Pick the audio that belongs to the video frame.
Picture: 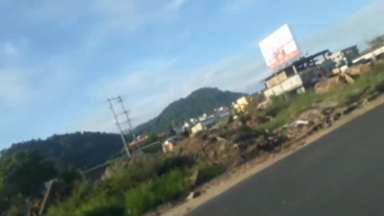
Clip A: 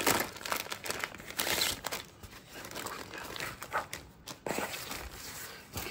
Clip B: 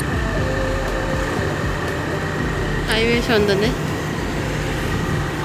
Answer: B